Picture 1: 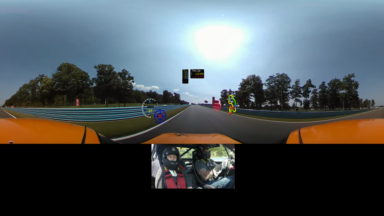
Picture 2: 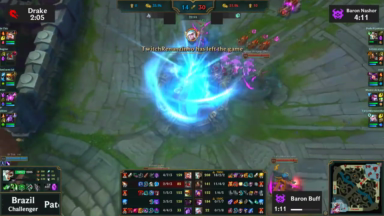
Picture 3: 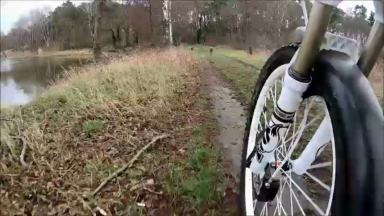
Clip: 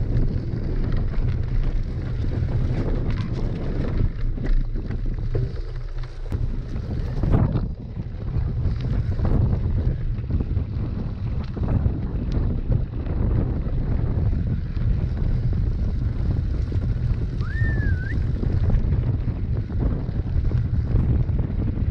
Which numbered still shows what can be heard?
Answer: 3